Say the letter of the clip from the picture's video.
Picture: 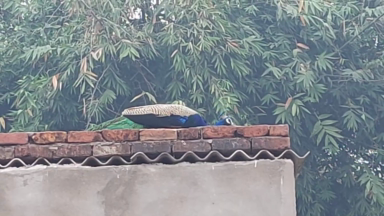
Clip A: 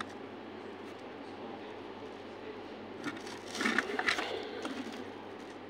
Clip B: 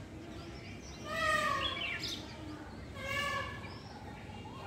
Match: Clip B